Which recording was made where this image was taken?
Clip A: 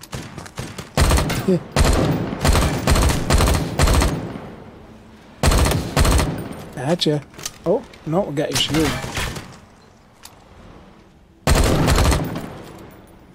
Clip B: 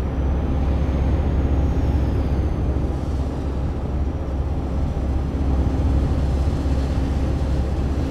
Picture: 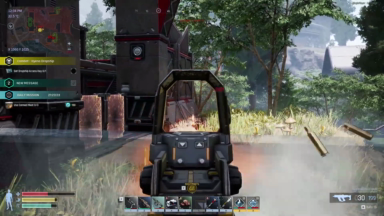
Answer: A